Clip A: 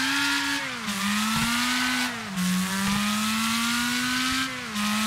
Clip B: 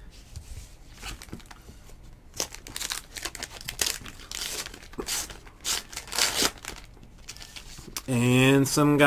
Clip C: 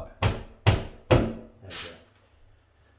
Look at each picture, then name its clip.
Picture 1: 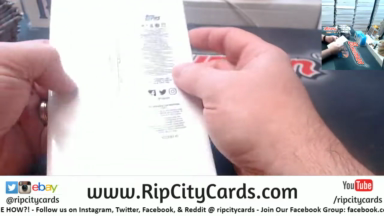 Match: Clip B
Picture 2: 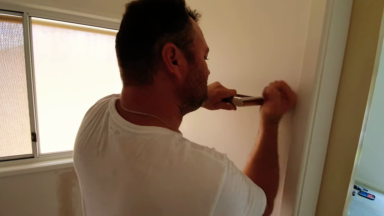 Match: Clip C